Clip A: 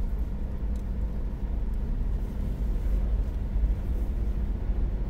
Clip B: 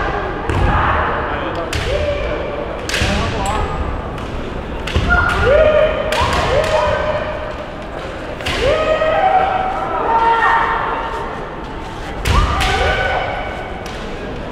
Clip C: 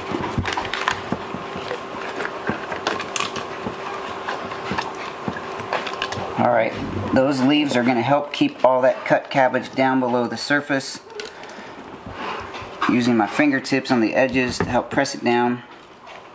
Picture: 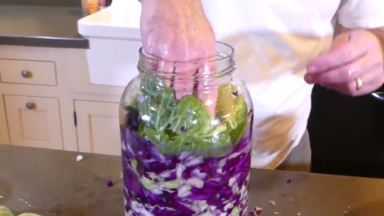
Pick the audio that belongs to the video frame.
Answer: C